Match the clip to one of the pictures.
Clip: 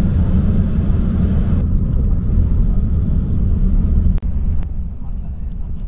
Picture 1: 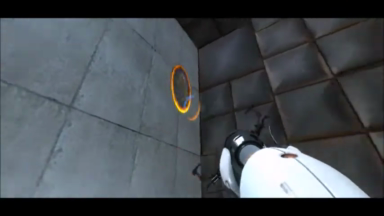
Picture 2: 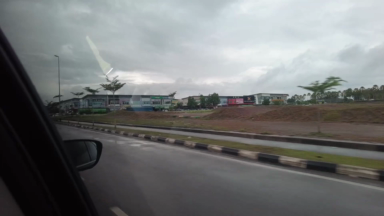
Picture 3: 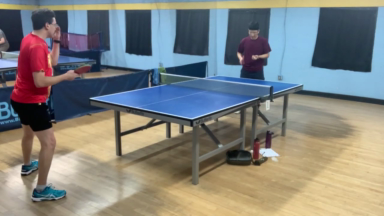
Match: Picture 2